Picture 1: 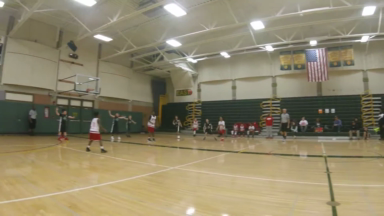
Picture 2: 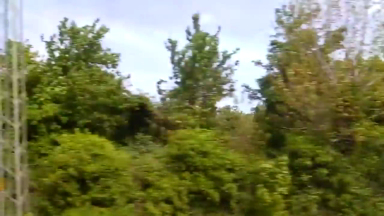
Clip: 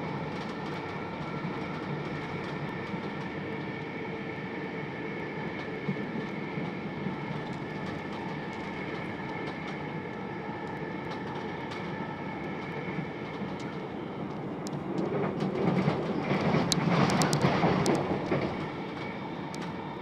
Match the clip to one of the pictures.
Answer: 2